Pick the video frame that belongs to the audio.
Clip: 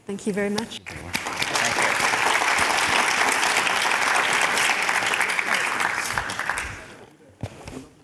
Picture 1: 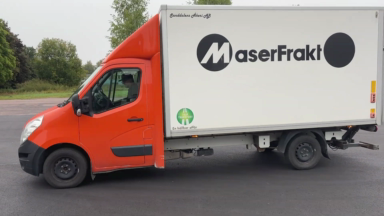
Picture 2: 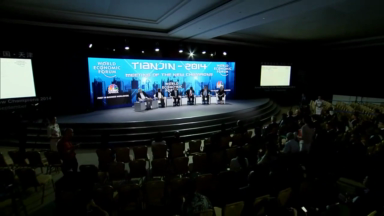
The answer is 2